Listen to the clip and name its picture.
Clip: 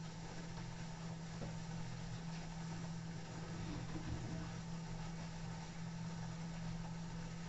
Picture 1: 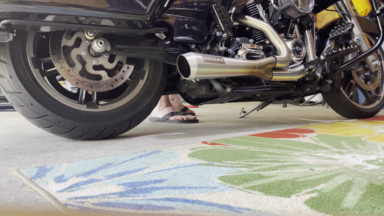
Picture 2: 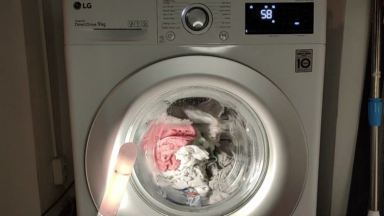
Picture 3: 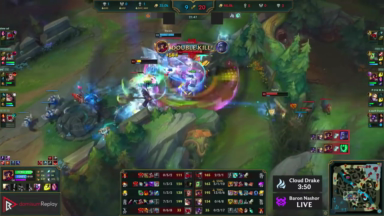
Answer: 2